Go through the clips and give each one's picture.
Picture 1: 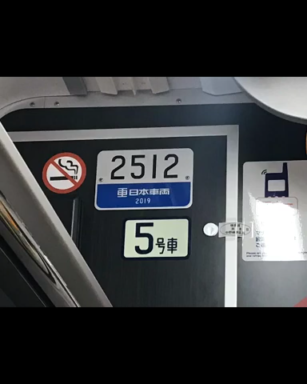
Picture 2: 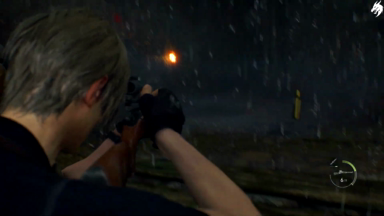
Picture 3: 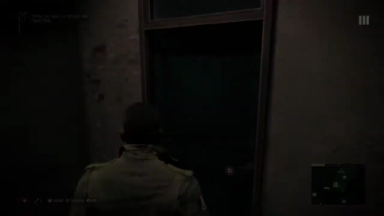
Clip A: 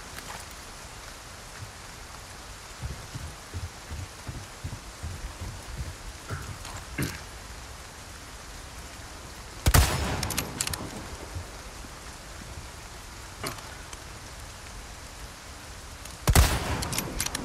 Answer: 2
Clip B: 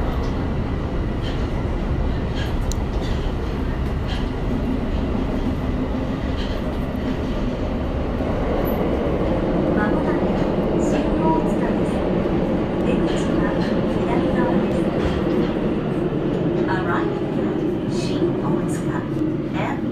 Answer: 1